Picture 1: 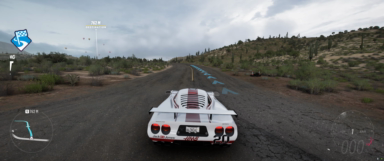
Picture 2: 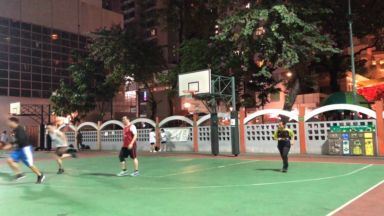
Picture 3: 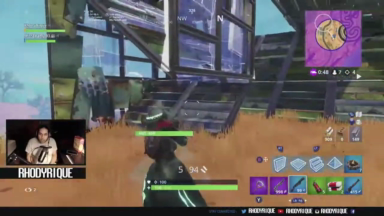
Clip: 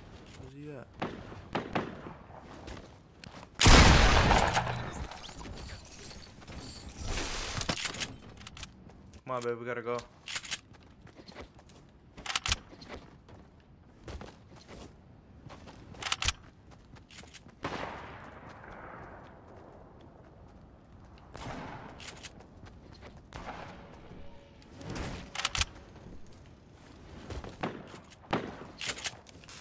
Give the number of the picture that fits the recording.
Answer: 3